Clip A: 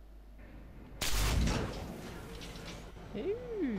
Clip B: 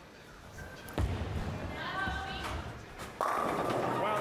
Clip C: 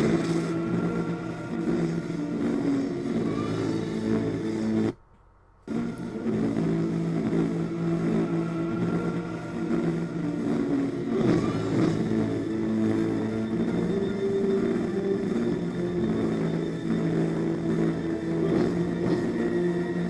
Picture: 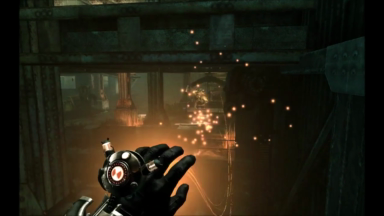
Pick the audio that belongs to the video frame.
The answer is A